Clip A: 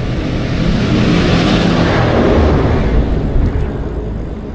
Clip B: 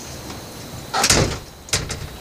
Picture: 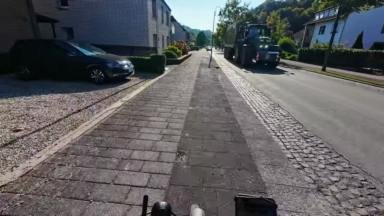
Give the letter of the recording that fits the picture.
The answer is A